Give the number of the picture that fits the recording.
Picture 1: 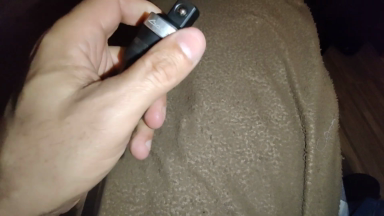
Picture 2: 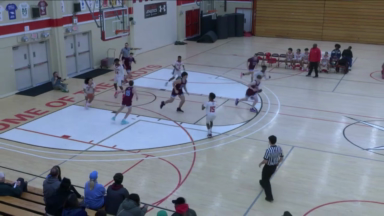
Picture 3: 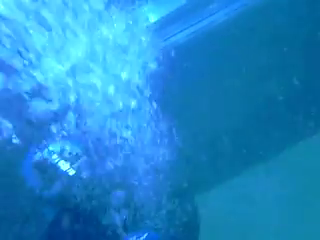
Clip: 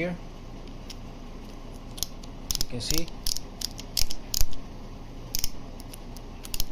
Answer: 1